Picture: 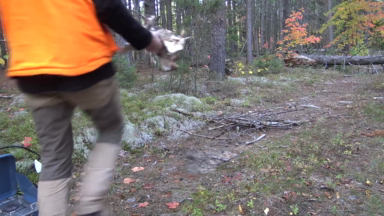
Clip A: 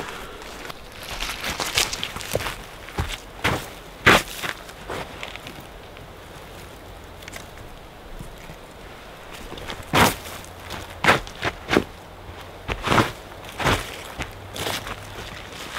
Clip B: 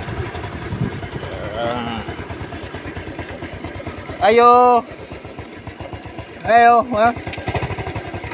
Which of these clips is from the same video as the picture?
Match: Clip A